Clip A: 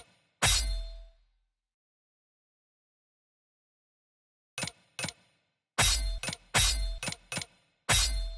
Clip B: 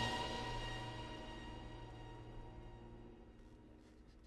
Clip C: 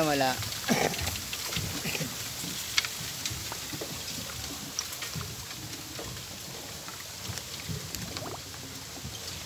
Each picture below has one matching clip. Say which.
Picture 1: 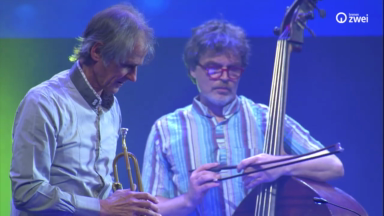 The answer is B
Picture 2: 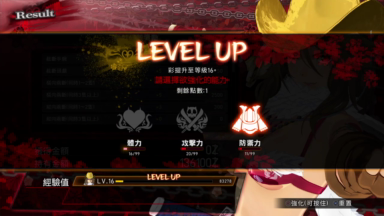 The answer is A